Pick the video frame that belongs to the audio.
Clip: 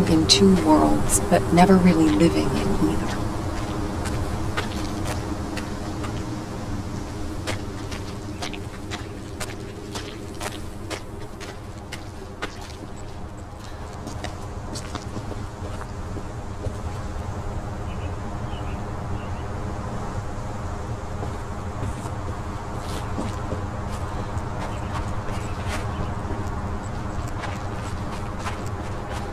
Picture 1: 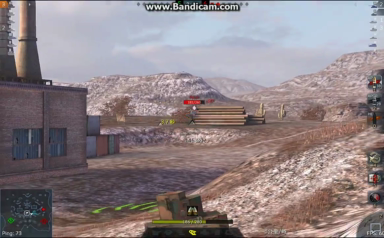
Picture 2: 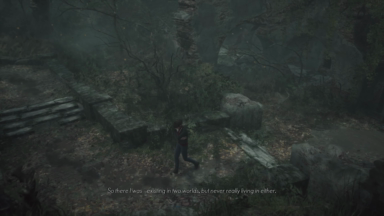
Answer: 2